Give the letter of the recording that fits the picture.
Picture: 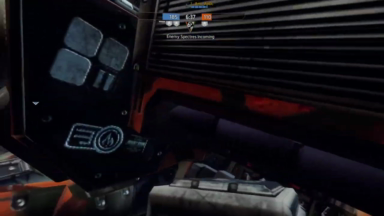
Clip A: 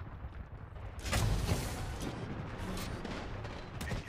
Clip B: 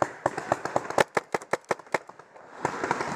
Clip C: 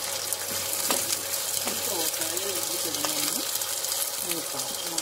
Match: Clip A